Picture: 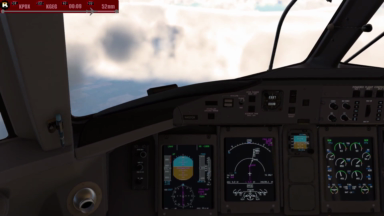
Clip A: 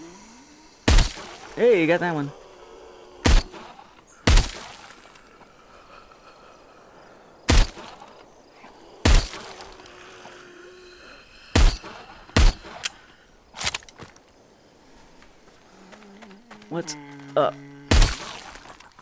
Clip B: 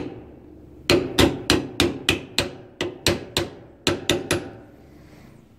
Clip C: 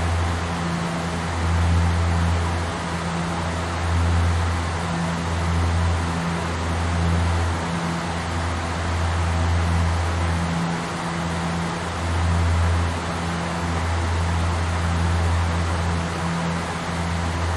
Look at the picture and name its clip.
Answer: C